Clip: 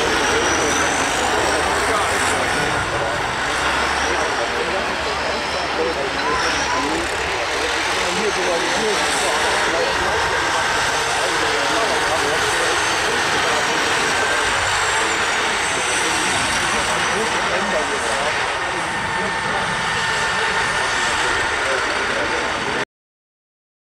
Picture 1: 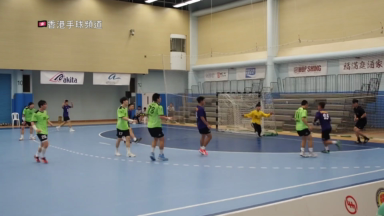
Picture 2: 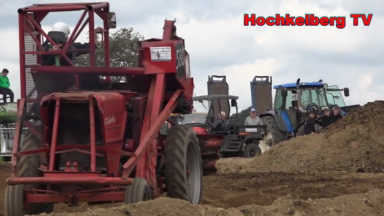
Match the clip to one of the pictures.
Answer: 2